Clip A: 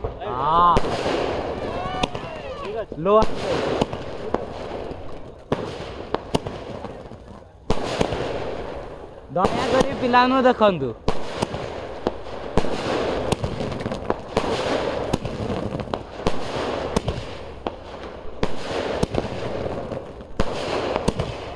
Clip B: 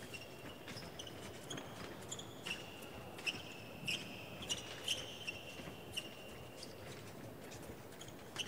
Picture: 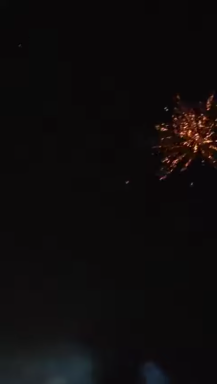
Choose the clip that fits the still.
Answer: A